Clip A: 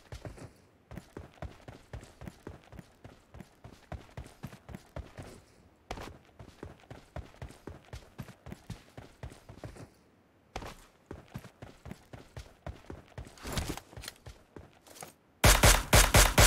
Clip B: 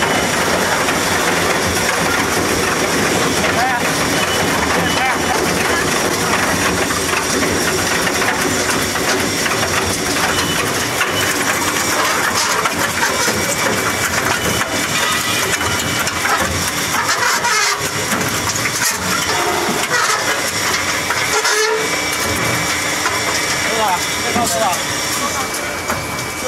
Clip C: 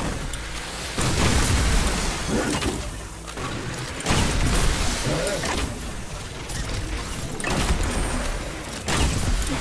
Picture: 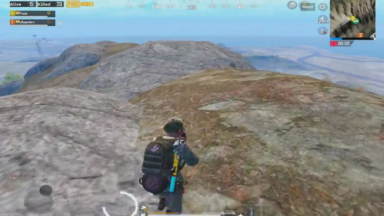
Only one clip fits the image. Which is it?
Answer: A